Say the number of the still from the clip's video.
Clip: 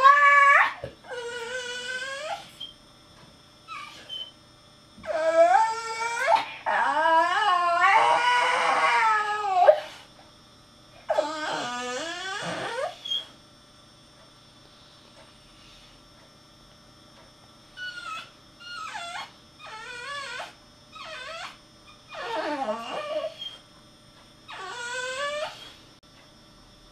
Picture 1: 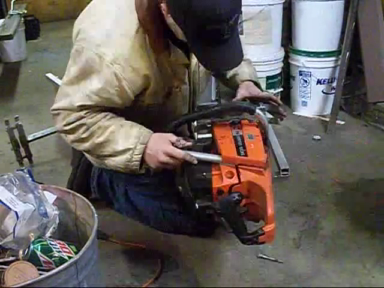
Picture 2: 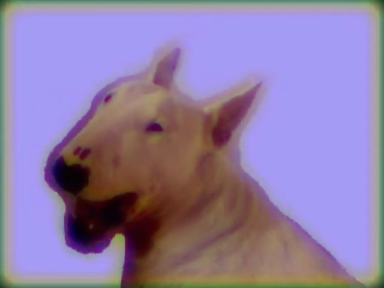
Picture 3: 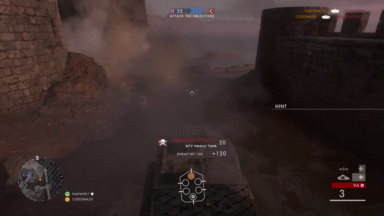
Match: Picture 2